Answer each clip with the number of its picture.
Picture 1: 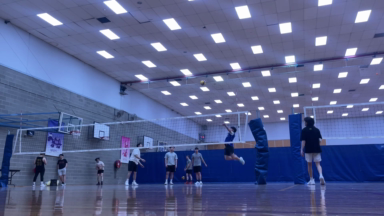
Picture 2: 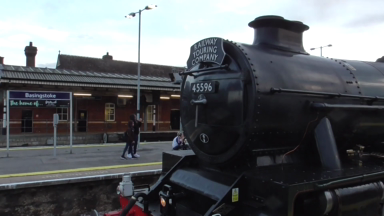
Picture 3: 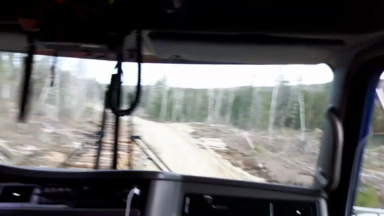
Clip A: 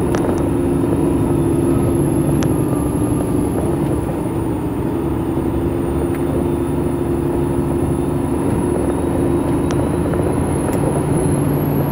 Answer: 3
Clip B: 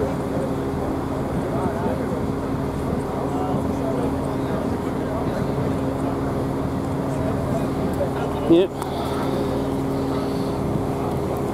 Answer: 2